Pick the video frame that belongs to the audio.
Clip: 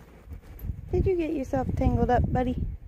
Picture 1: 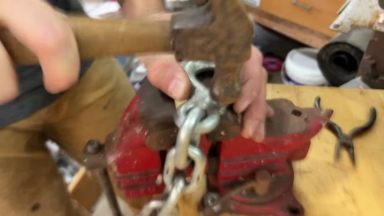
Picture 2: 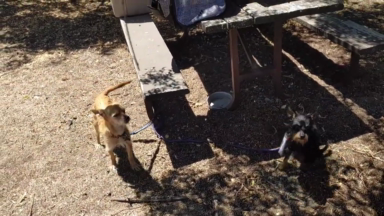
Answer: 2